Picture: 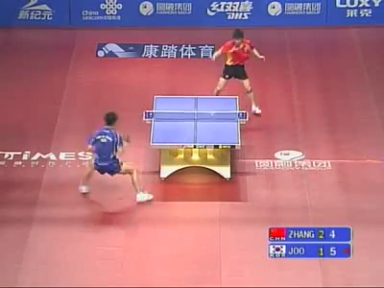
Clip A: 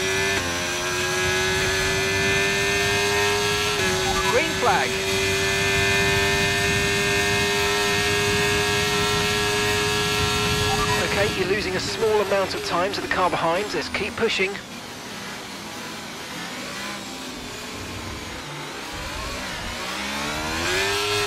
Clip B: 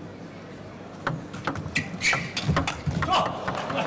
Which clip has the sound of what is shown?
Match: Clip B